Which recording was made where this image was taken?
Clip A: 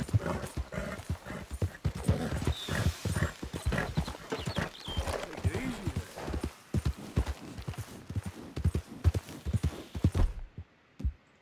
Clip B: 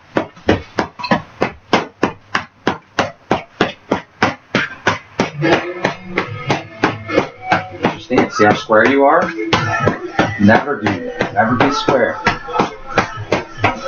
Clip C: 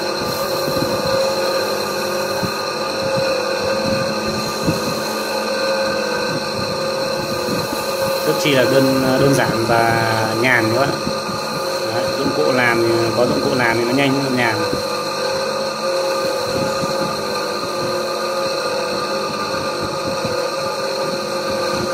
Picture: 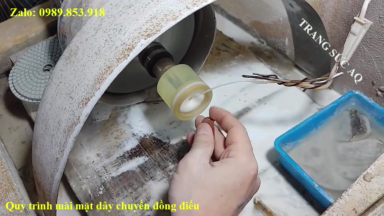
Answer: C